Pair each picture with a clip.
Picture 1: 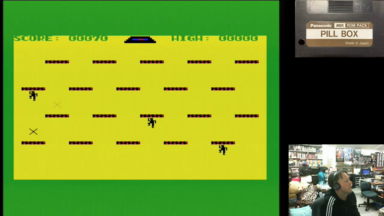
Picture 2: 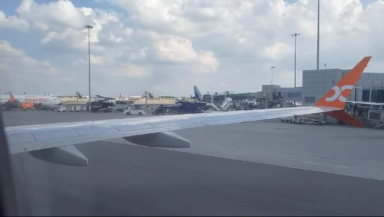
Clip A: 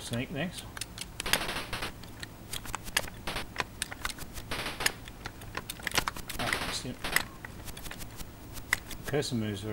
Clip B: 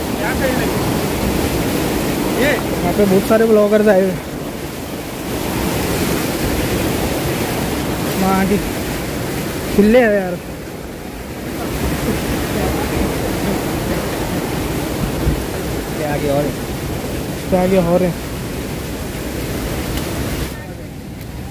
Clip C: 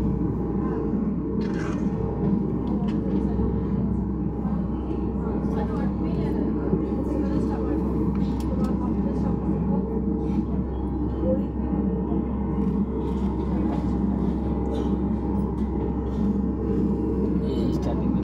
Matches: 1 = A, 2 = C